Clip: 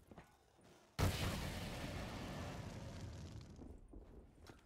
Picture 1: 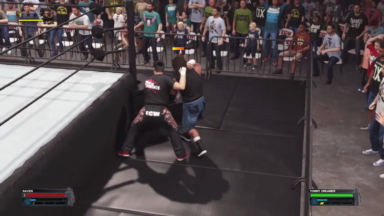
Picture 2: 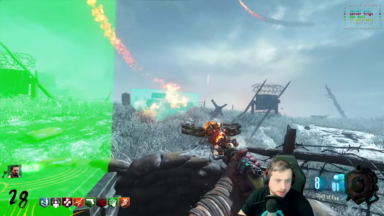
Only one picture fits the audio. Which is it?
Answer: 2